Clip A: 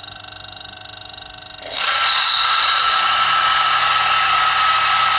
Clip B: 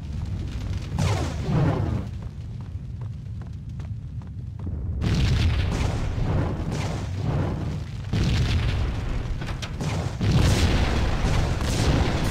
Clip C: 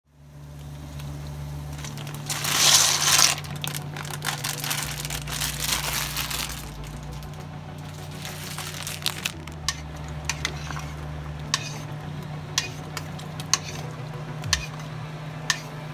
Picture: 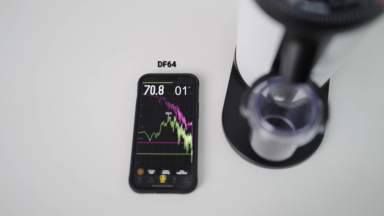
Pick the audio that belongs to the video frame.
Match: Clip A